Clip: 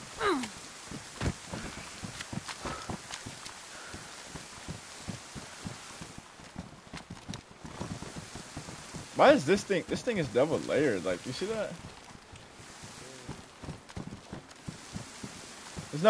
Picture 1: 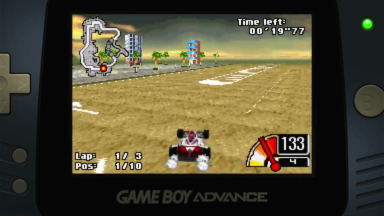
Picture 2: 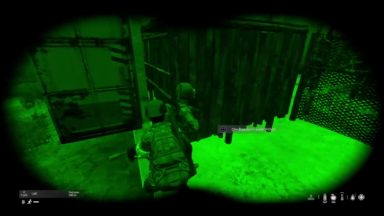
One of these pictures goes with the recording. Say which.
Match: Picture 2